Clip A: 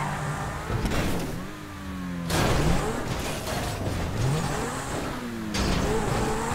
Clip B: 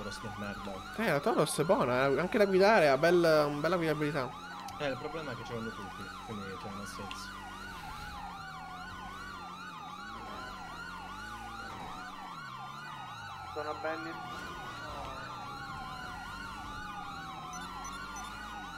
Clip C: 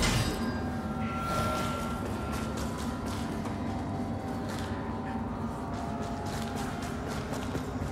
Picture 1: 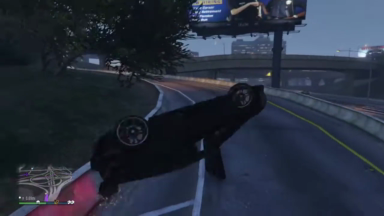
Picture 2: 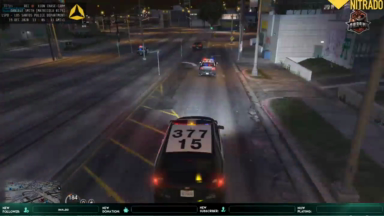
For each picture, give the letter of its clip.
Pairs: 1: A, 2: B